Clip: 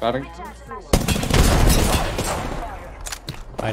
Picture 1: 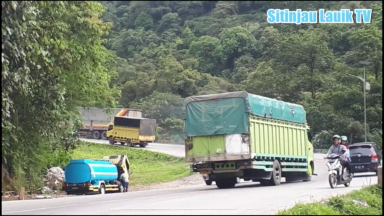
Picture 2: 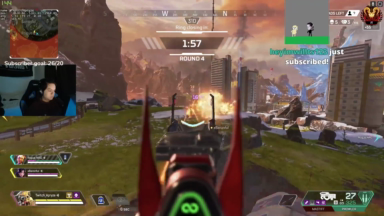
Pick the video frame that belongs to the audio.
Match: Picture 2